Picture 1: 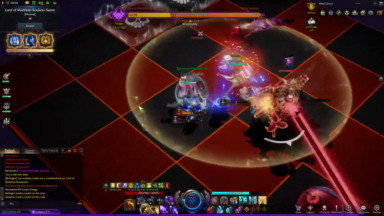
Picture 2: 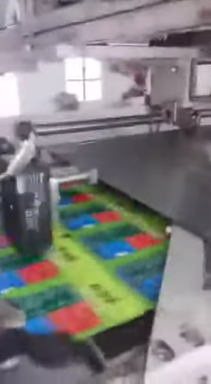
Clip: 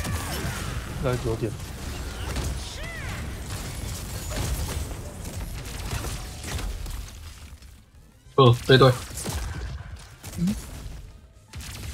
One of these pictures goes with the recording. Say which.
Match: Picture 1